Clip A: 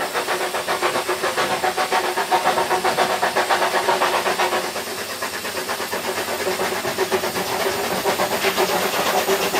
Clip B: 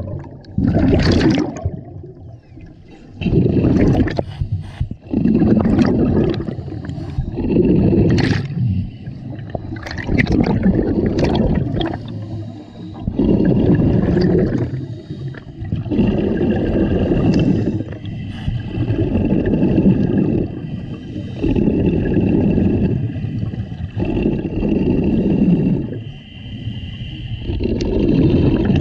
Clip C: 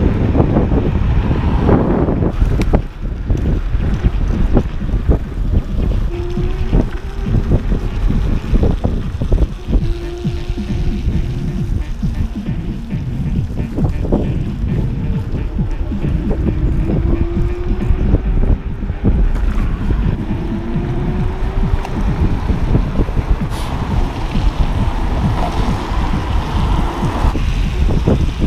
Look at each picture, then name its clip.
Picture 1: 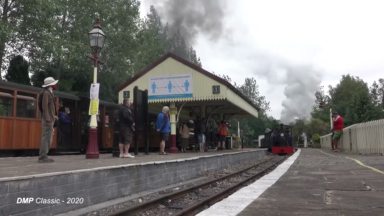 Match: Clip A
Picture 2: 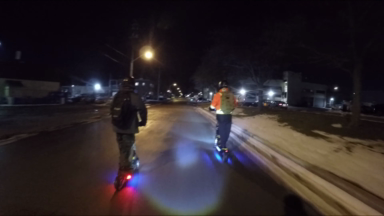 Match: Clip C